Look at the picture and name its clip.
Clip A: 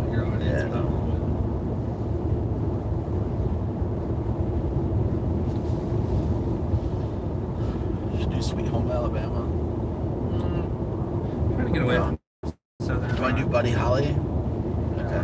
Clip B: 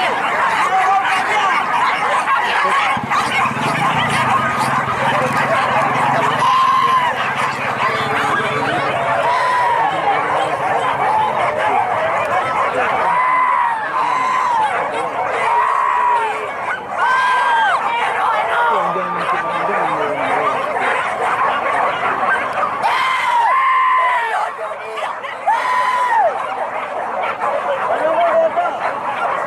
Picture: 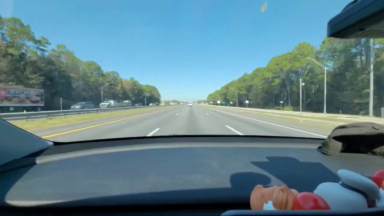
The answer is A